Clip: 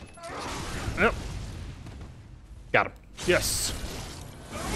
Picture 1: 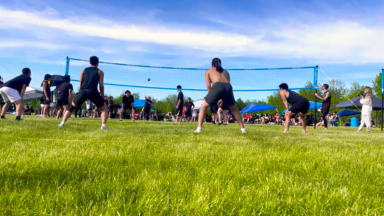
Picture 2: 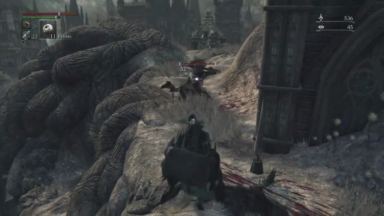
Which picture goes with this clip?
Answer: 2